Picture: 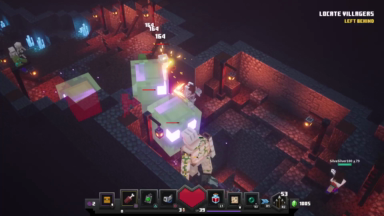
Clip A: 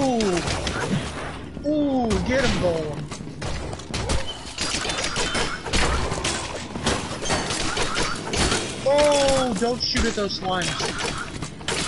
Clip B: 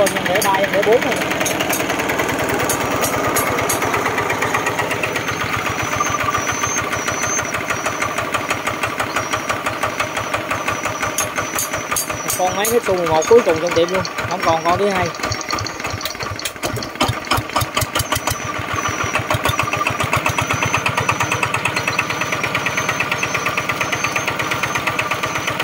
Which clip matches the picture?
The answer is A